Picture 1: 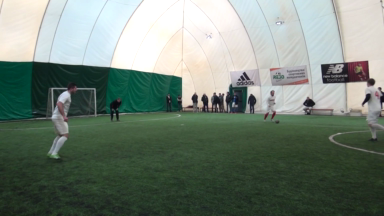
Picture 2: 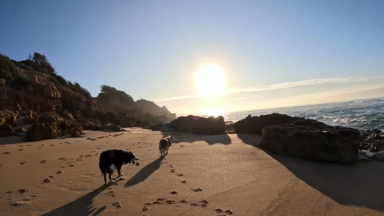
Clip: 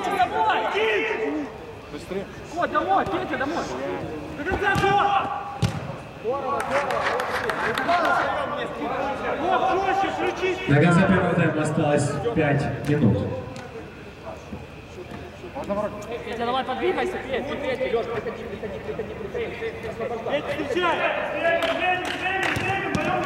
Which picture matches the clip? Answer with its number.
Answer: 1